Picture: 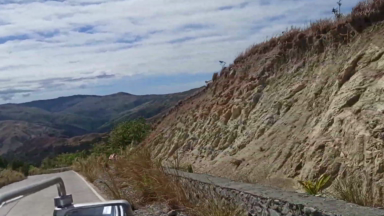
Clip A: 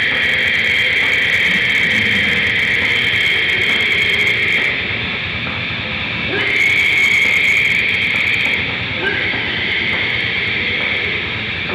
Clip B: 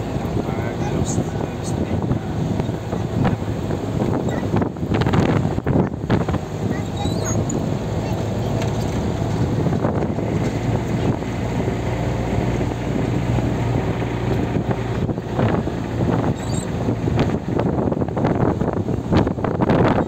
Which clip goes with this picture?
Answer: B